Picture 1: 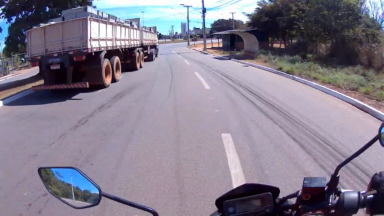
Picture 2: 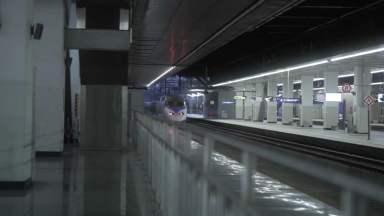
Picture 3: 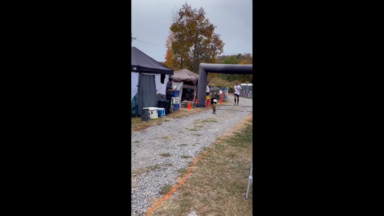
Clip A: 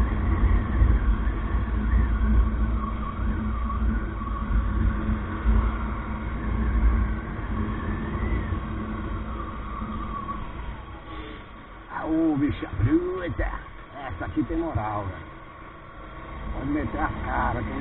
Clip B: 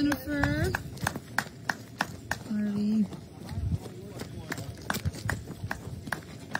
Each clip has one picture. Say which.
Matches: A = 1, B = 3